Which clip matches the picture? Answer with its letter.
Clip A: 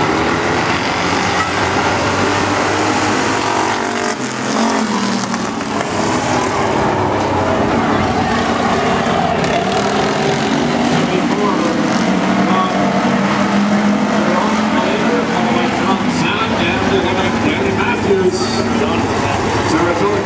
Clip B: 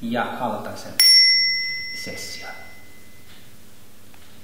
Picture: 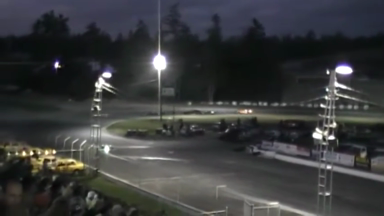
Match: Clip A